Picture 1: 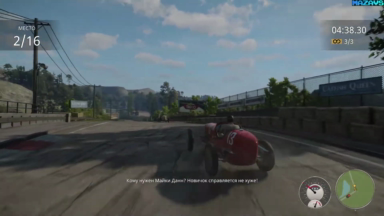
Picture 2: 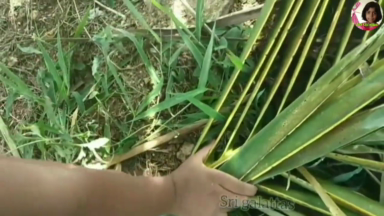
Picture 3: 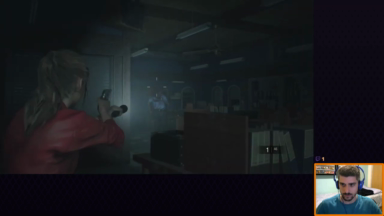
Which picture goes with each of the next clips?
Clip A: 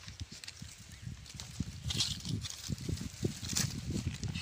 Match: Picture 2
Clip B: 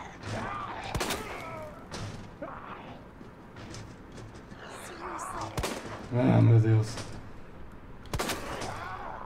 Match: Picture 3